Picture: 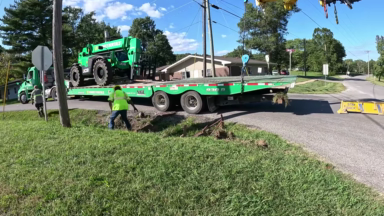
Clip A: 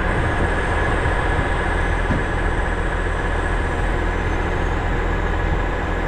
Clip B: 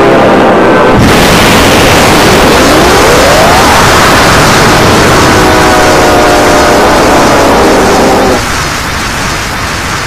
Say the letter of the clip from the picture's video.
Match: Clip A